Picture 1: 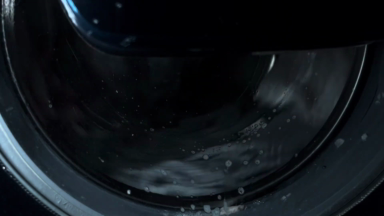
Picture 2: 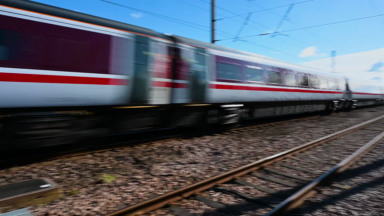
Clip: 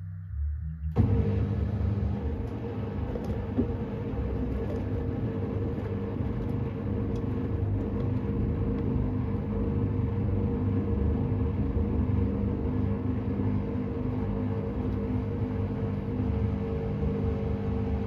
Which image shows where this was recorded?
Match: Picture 1